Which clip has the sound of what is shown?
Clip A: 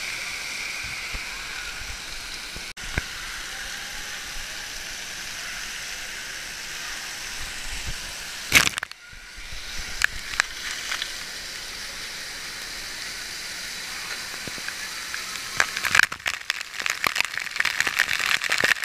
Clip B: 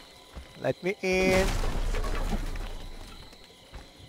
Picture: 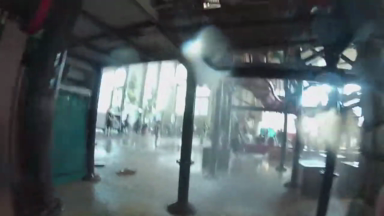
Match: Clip A